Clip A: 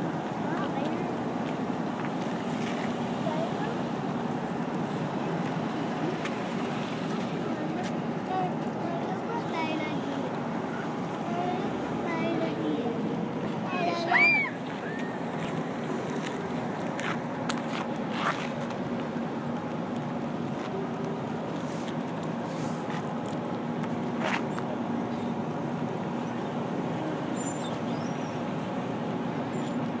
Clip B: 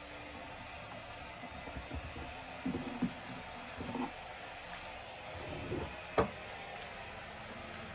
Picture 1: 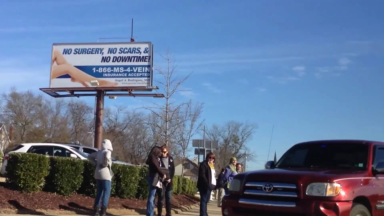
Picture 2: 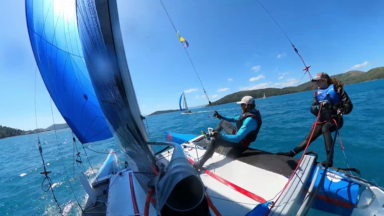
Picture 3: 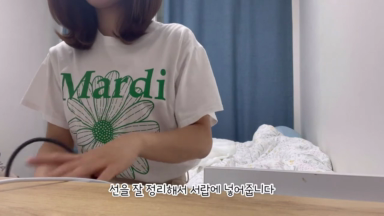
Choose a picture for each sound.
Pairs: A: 1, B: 3